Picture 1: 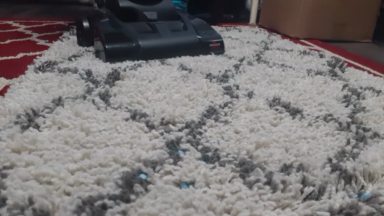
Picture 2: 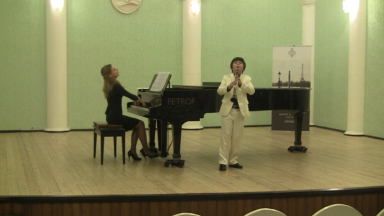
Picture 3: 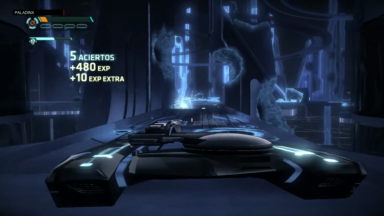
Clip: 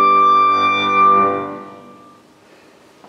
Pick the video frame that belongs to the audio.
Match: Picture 2